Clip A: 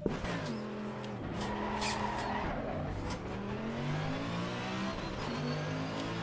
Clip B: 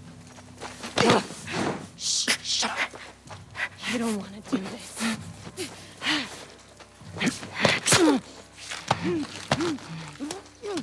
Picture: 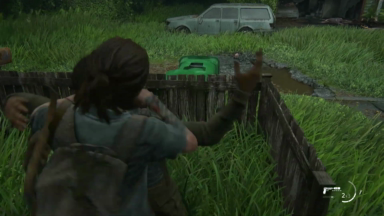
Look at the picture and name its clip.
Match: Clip B